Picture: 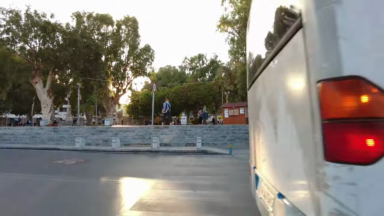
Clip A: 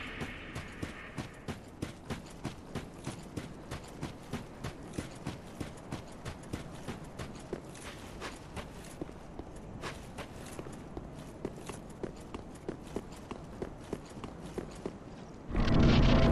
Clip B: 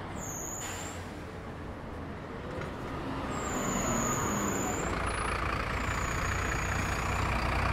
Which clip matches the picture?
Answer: B